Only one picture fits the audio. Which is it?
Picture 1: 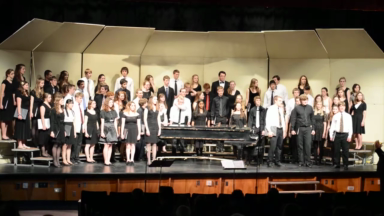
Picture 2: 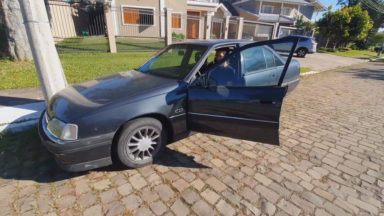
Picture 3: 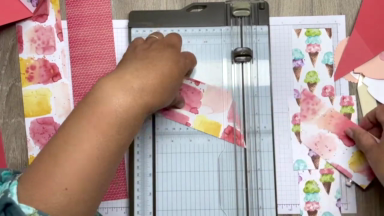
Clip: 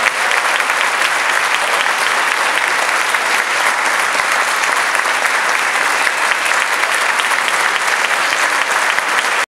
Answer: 1